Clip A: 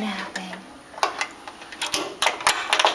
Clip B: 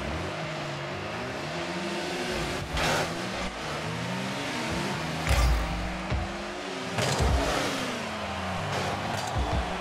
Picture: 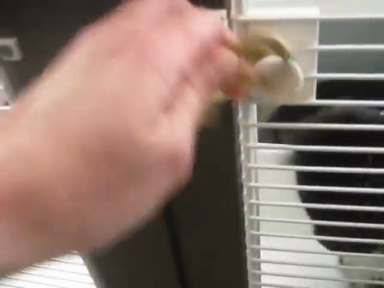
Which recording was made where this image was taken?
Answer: A